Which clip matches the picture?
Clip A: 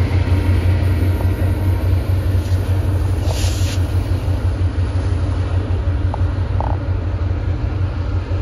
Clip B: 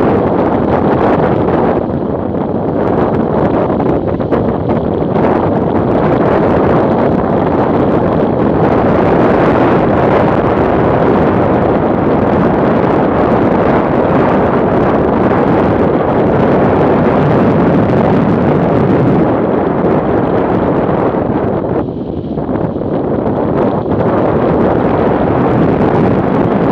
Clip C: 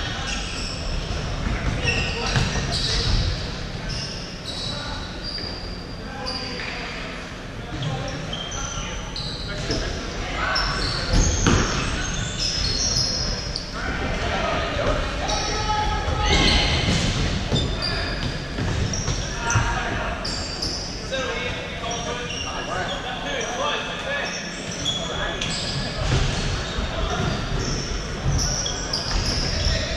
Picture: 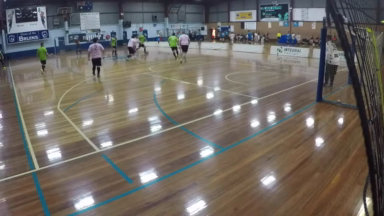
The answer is C